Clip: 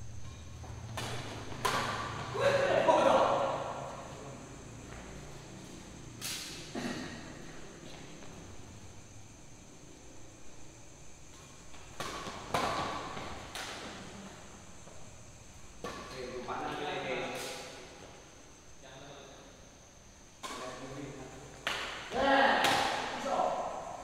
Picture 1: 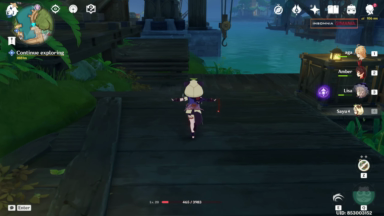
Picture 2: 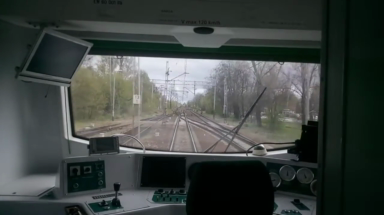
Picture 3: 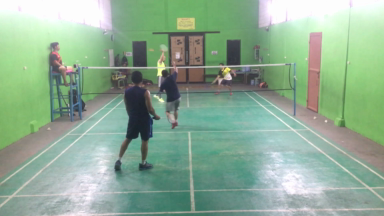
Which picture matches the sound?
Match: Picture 3